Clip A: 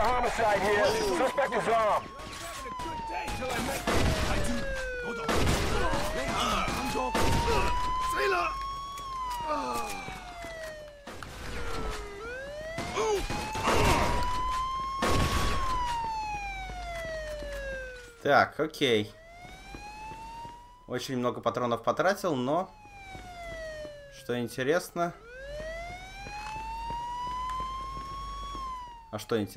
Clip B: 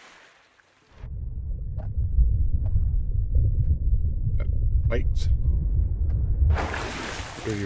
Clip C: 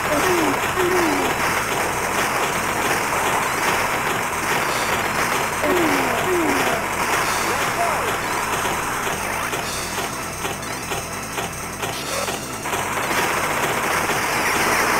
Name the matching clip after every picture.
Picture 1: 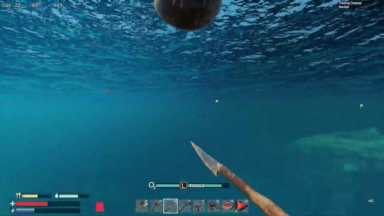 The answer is B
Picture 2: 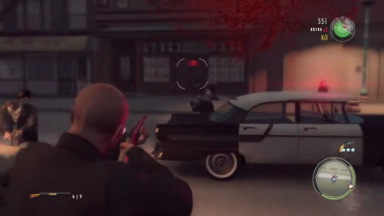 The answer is A